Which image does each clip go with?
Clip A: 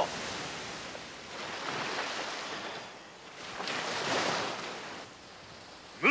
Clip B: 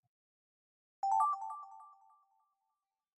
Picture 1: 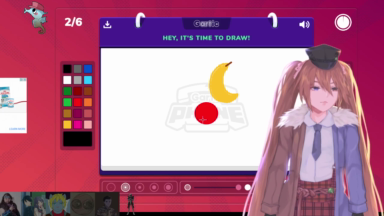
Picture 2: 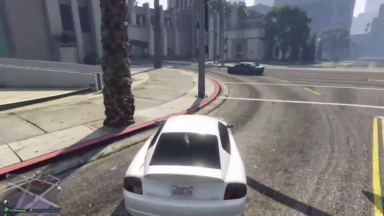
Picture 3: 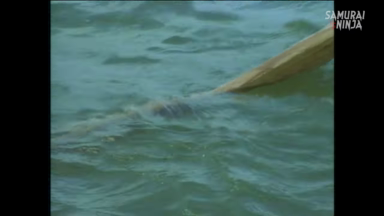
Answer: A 3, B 1